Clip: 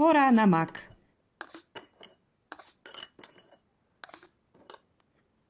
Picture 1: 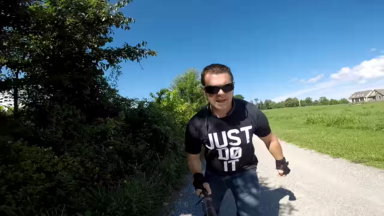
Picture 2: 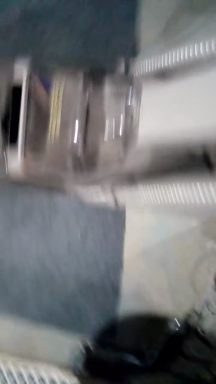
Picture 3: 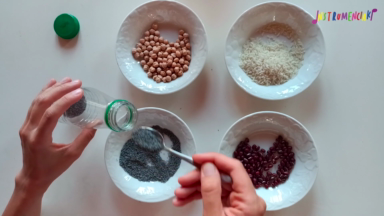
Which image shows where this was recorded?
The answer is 3